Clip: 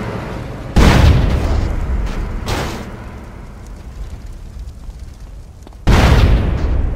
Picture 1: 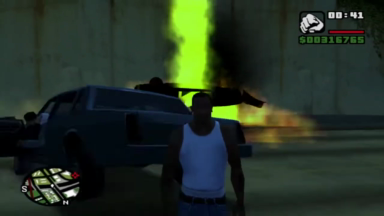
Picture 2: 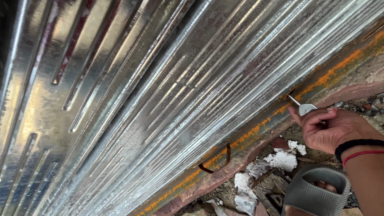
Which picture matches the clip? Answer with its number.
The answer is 1